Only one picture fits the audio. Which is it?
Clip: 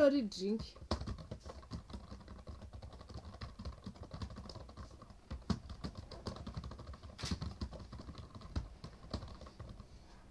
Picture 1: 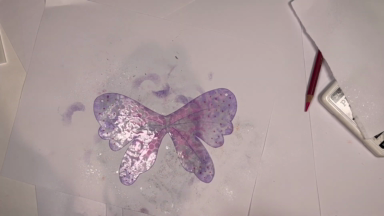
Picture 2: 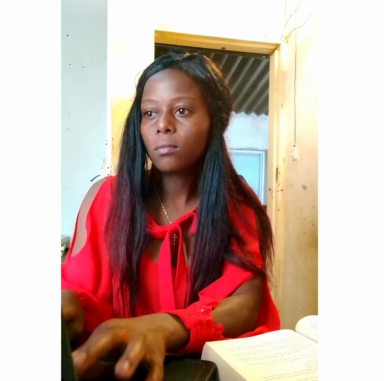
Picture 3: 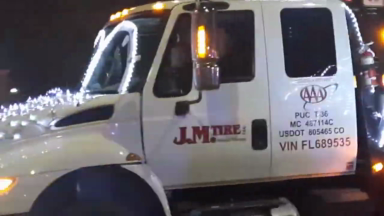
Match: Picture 2